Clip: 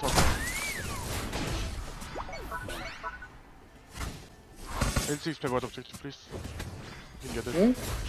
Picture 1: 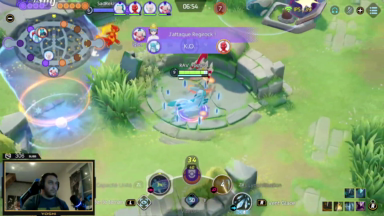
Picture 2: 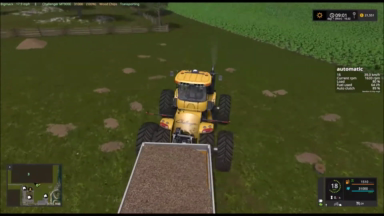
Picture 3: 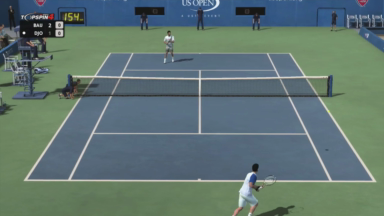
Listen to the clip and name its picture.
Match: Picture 1